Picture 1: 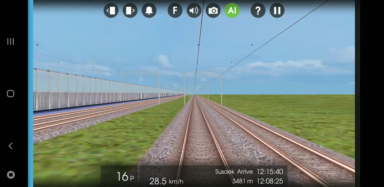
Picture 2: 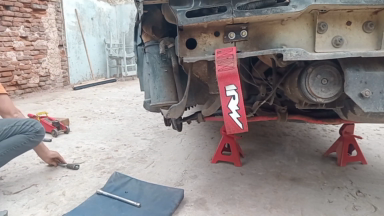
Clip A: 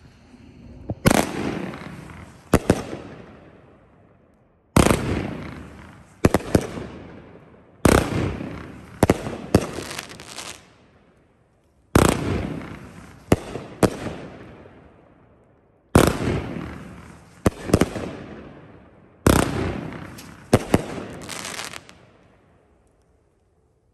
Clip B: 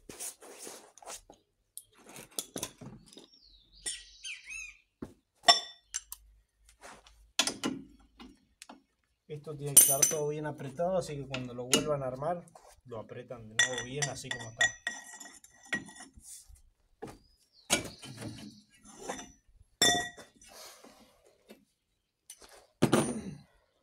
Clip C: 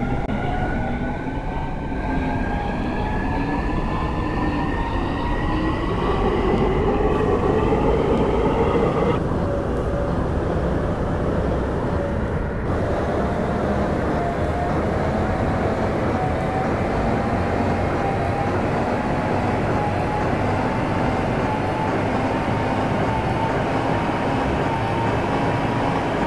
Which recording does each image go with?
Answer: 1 C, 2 B